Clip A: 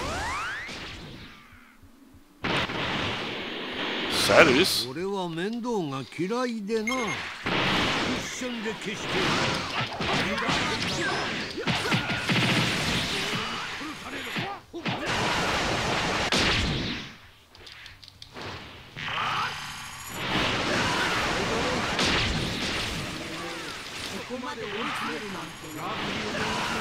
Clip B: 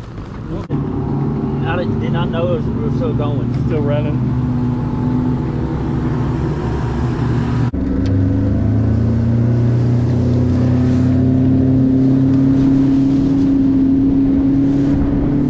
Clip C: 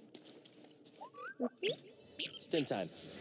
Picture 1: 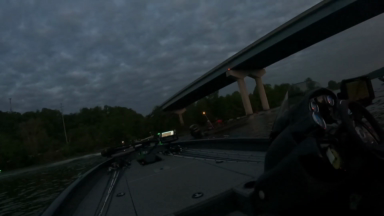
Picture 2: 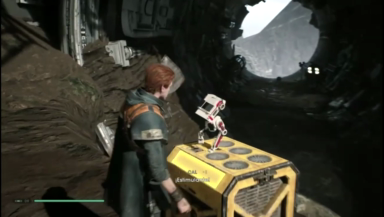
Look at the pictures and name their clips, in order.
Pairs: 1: B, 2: C